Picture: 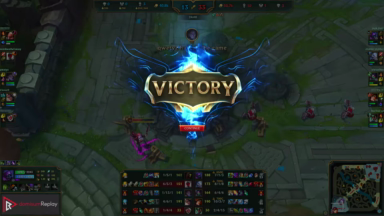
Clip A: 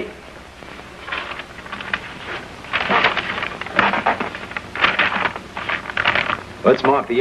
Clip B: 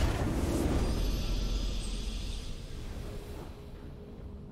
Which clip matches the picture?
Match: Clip B